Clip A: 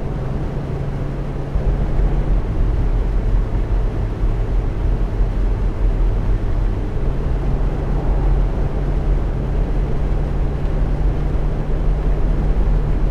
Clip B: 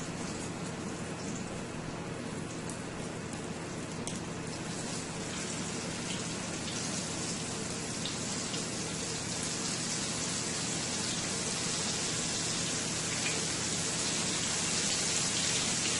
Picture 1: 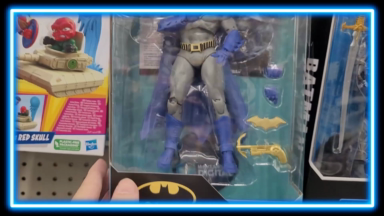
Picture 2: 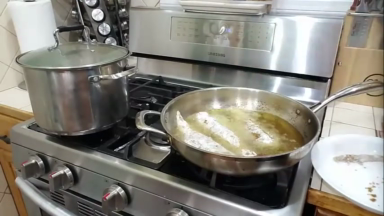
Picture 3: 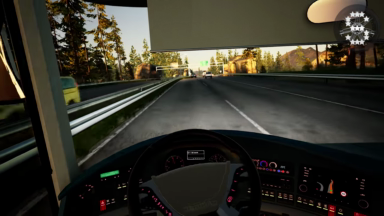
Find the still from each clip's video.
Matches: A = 3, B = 2